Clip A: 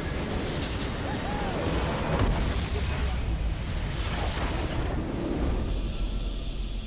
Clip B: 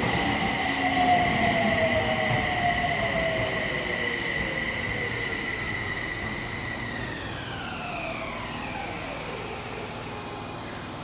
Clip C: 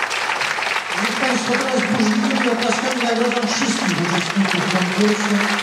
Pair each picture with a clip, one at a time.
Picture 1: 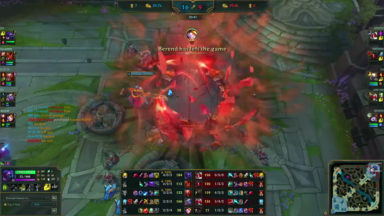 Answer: A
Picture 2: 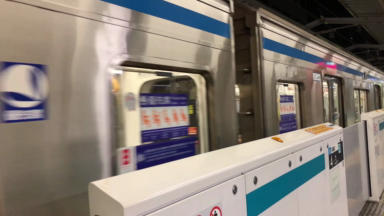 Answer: B